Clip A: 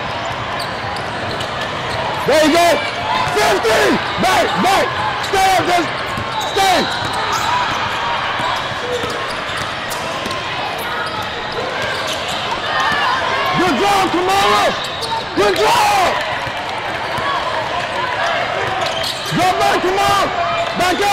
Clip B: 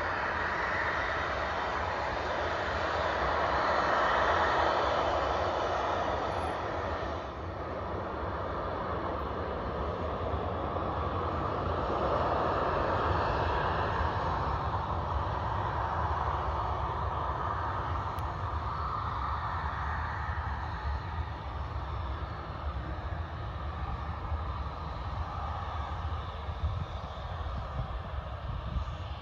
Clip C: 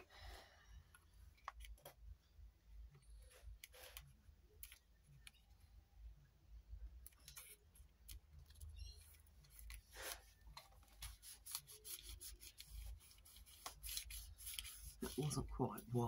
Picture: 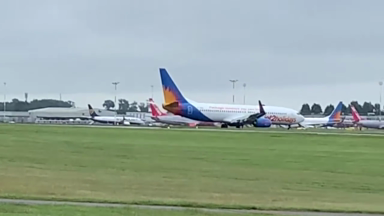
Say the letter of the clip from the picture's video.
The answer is B